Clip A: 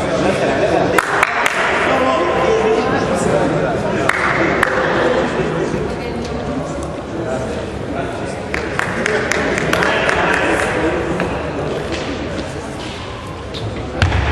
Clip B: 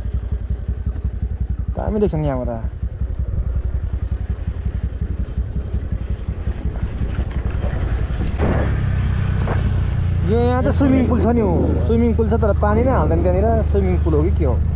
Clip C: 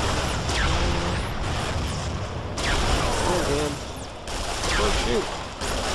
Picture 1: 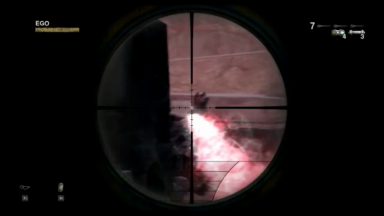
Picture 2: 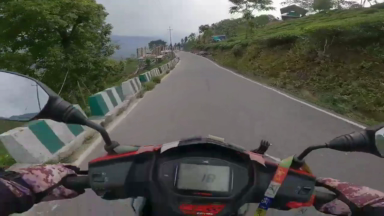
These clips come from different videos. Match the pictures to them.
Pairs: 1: C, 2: B